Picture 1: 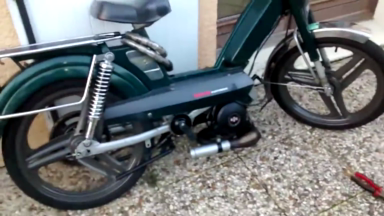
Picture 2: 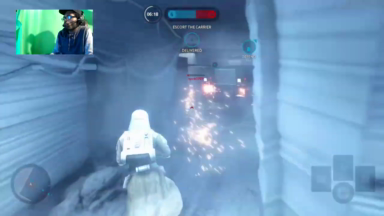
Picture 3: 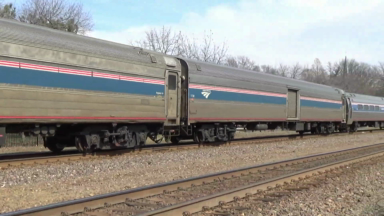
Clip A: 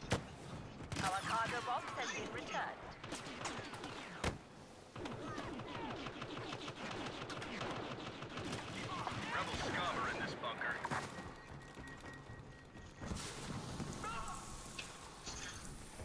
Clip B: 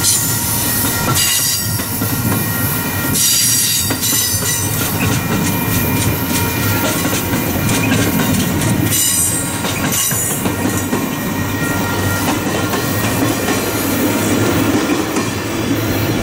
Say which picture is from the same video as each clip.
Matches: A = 2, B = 3